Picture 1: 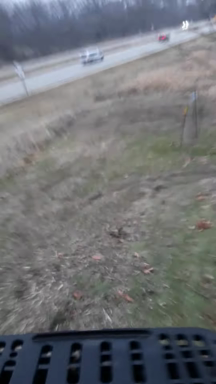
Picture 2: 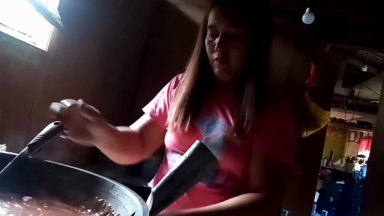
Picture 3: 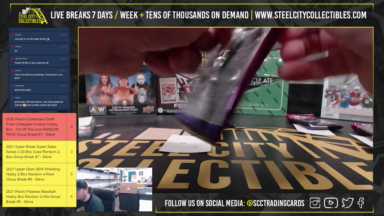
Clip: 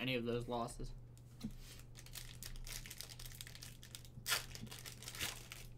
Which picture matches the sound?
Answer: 3